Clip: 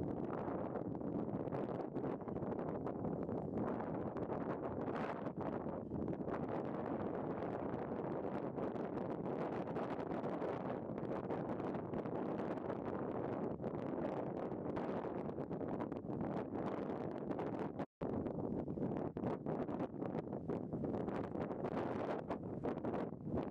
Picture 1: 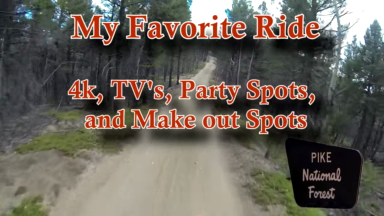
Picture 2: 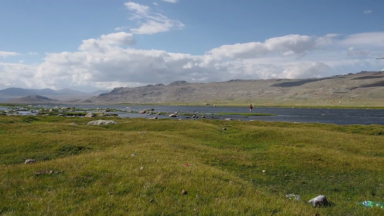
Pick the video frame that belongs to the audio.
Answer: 2